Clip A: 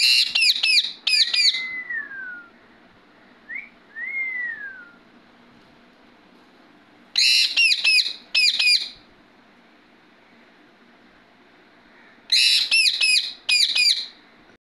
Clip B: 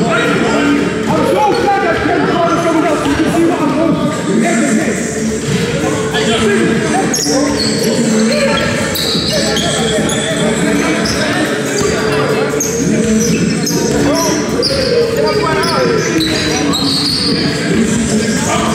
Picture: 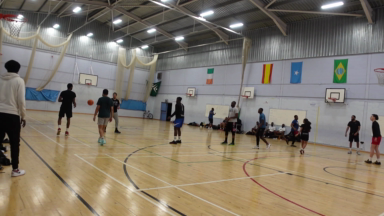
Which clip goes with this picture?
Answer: B